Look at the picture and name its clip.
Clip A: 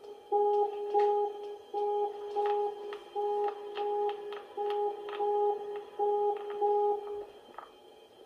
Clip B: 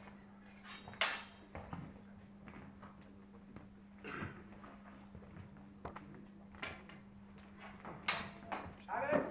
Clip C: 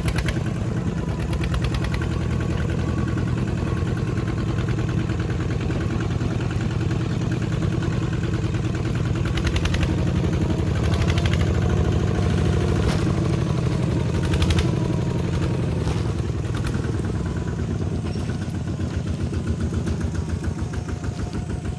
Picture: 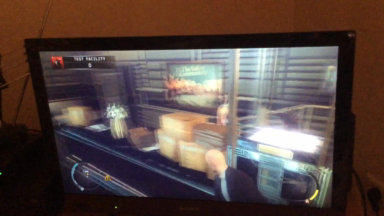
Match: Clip A